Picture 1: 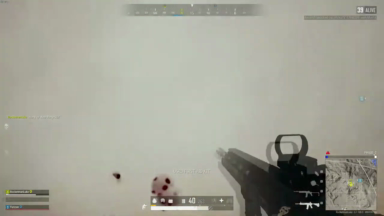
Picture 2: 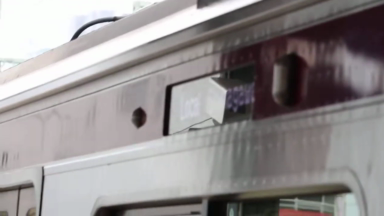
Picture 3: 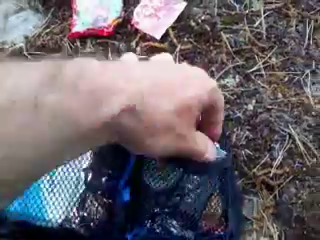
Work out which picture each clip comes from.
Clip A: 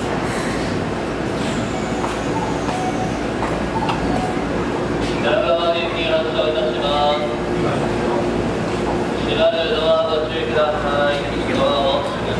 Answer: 2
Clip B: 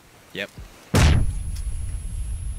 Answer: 1